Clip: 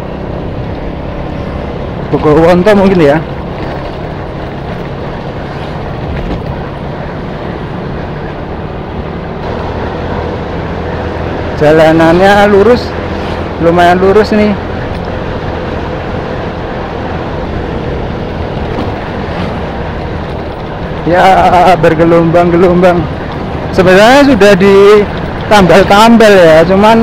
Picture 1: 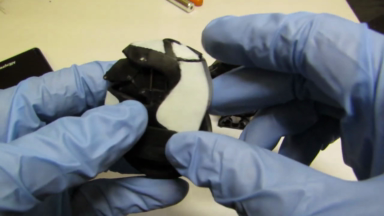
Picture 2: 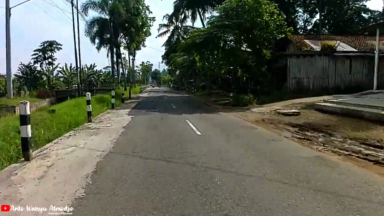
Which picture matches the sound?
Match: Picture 2